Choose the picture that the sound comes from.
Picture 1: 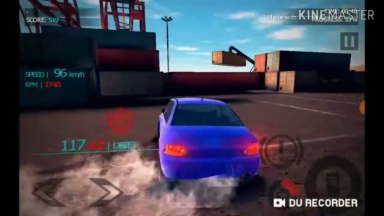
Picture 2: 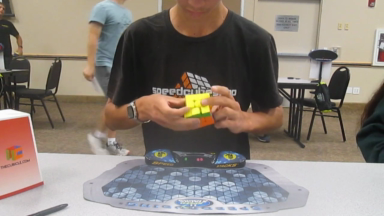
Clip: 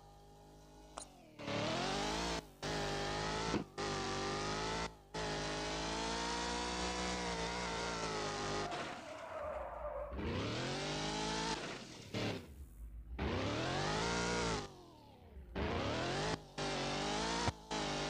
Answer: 1